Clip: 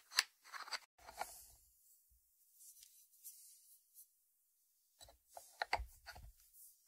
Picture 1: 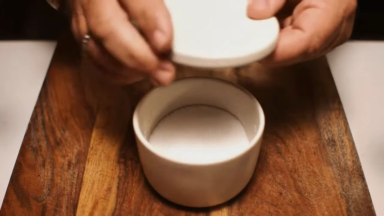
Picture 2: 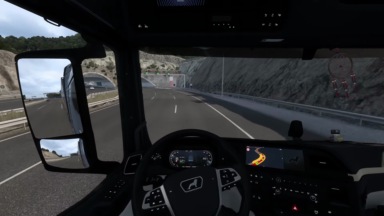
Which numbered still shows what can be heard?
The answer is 1